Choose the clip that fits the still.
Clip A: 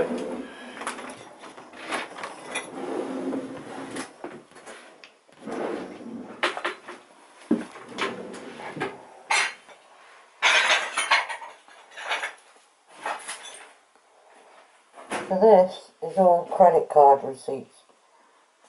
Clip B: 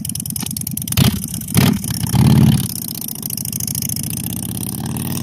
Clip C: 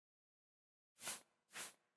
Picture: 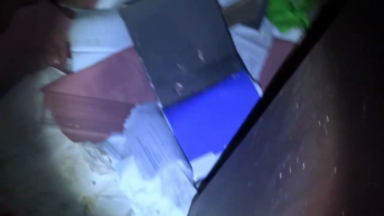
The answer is A